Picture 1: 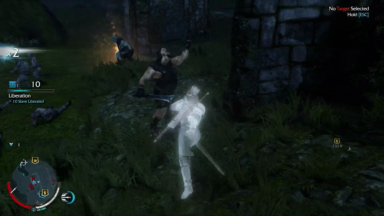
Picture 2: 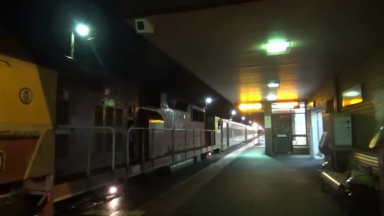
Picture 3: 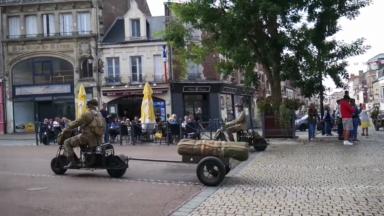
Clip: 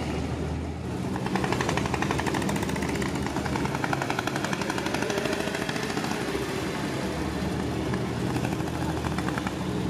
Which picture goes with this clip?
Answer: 3